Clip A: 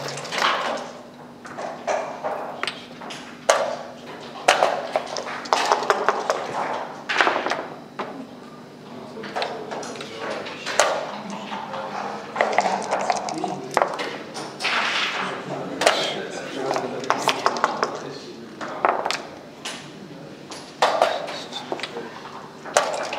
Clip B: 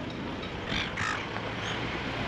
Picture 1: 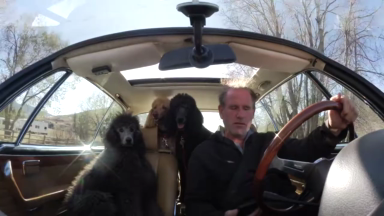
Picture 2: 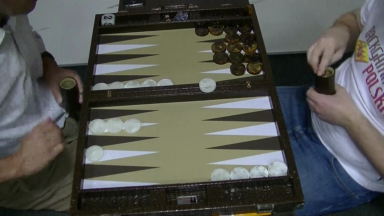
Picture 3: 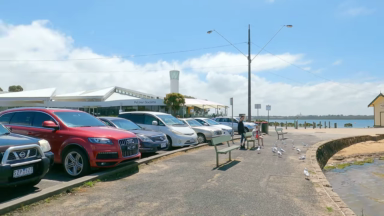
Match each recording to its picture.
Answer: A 2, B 3